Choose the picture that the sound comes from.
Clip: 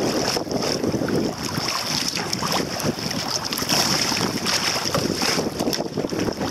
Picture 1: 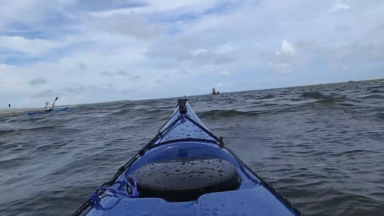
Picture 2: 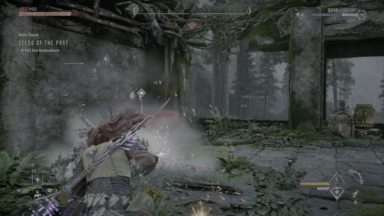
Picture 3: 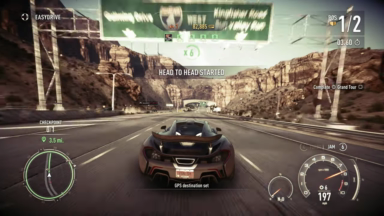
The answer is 1